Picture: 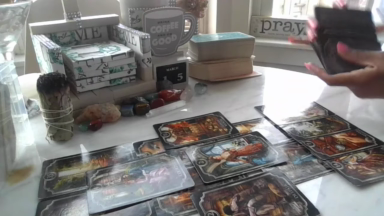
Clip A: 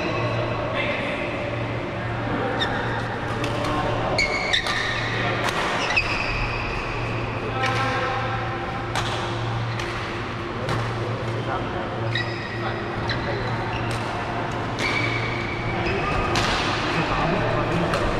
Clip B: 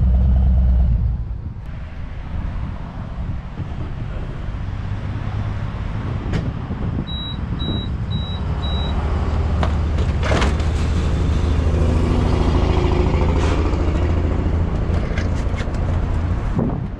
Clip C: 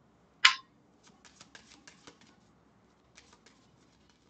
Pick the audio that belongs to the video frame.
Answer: C